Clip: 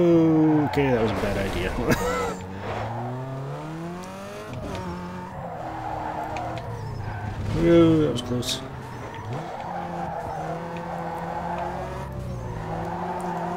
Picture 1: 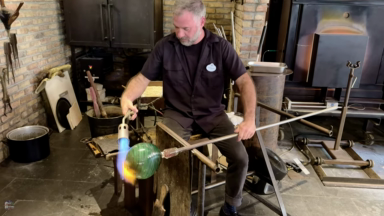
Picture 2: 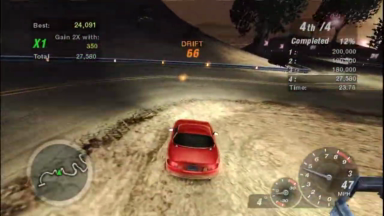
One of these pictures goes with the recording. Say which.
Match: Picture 2